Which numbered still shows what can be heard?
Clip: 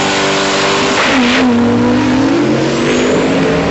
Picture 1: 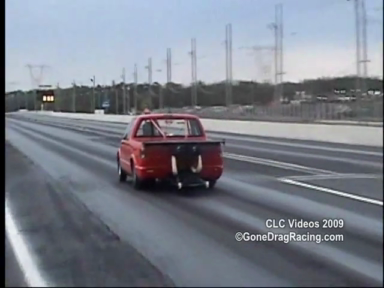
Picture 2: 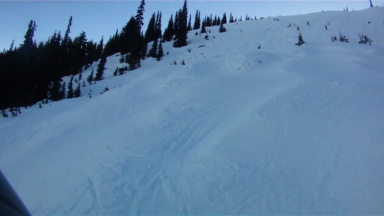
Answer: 1